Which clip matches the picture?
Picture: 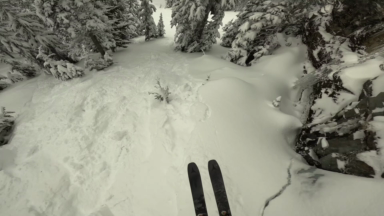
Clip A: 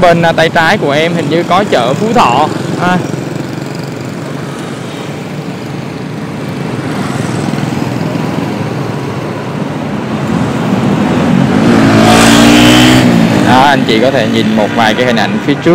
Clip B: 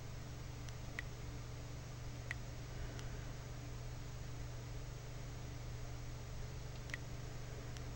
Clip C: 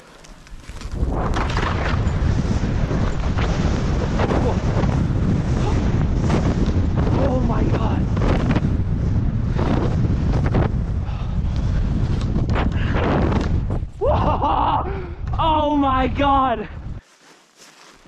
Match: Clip C